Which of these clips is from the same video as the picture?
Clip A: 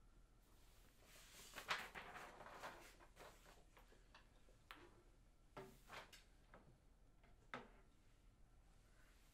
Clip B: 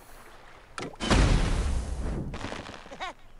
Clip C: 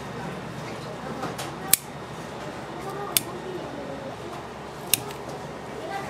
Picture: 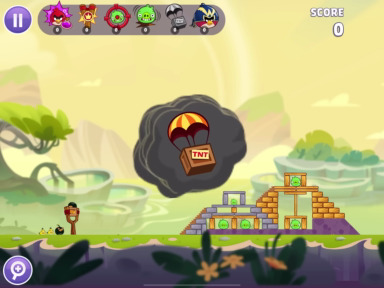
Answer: B